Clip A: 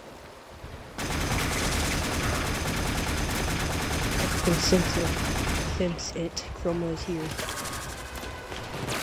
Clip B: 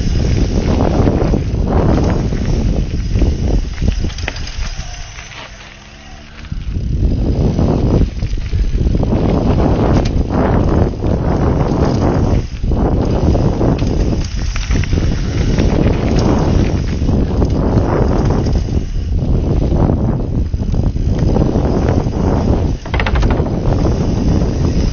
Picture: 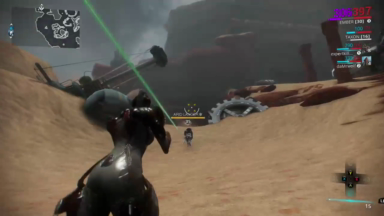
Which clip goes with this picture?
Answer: A